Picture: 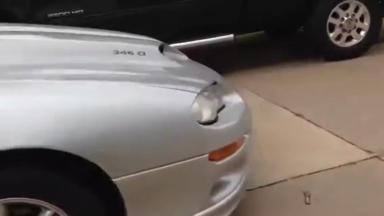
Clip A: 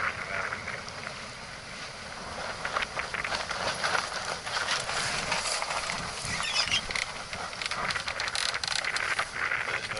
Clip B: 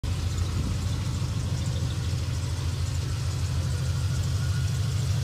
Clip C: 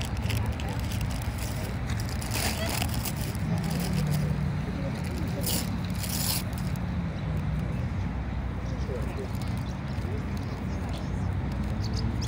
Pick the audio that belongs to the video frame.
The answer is B